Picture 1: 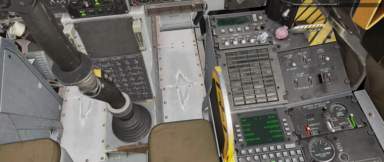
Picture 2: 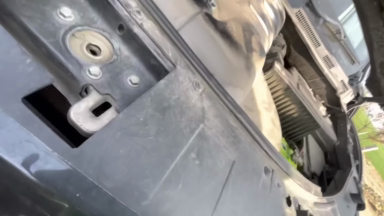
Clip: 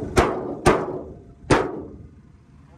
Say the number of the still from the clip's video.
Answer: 2